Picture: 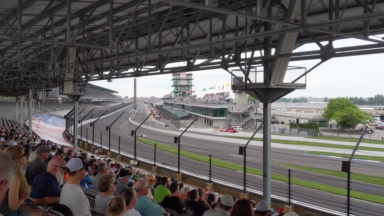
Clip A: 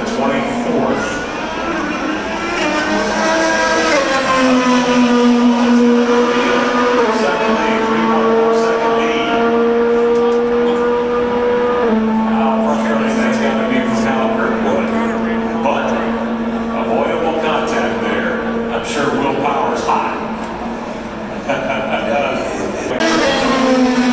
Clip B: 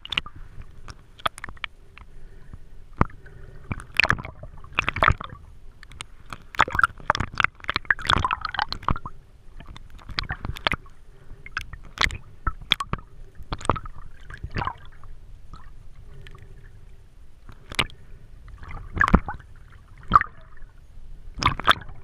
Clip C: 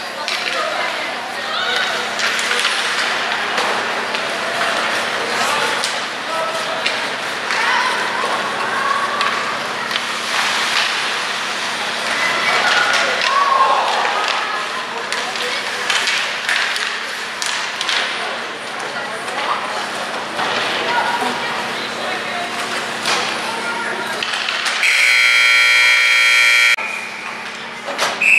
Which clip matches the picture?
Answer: A